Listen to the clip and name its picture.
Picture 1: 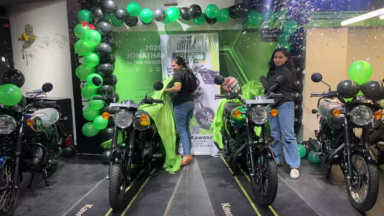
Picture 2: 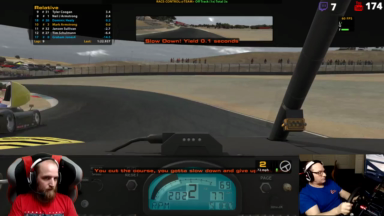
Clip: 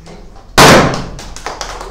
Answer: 1